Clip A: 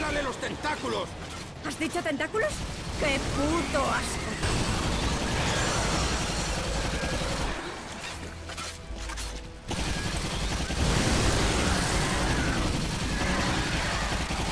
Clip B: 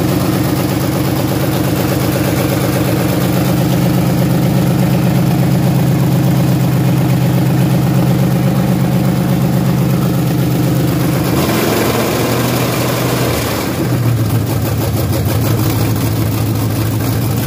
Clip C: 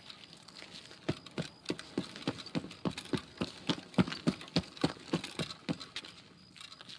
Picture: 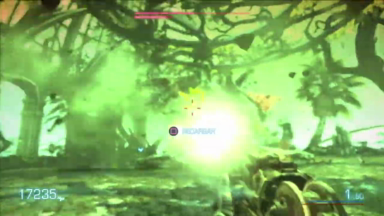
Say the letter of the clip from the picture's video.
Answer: A